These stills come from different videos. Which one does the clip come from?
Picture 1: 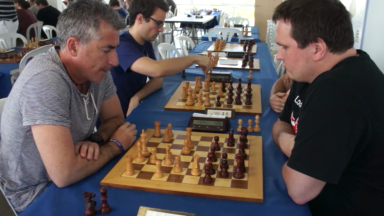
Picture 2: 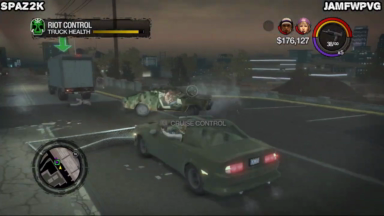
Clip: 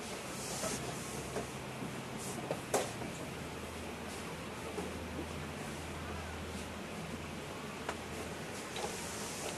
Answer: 1